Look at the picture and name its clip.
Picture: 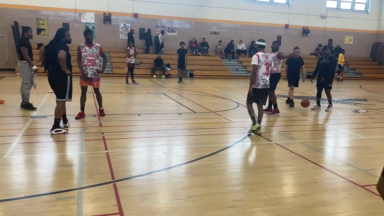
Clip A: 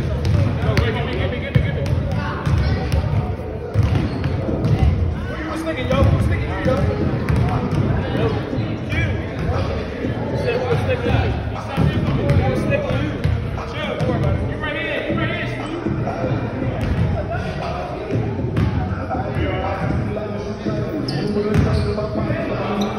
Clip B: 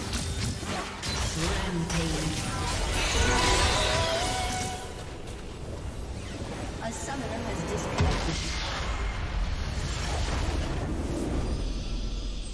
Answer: A